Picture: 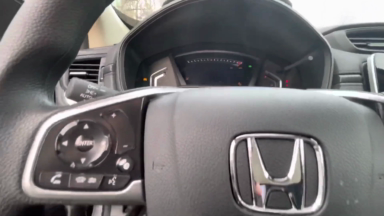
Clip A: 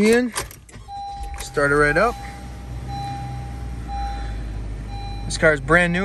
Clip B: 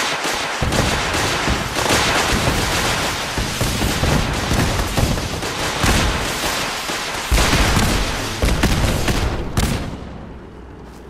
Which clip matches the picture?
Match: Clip A